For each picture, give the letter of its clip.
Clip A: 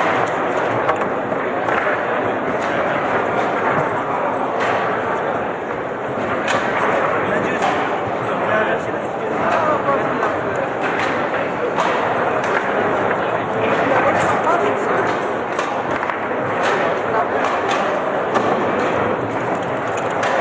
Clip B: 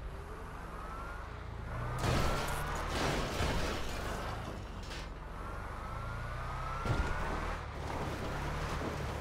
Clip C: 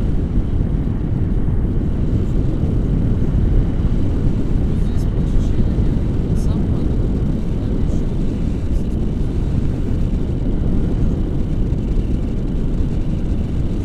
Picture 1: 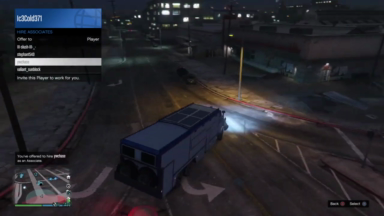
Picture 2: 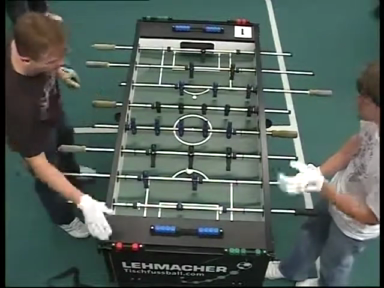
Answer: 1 B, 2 A